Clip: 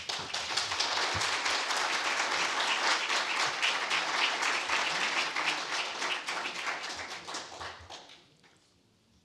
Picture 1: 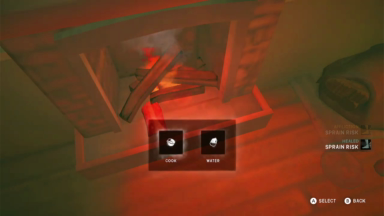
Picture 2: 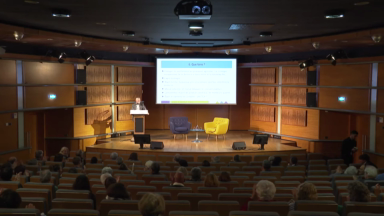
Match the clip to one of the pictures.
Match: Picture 2